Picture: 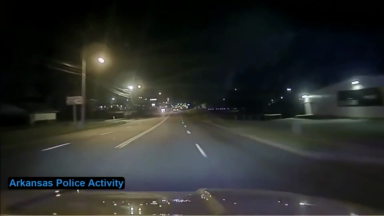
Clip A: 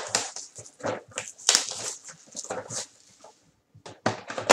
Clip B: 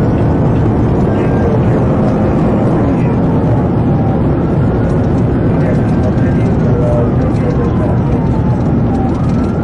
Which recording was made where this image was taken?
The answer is B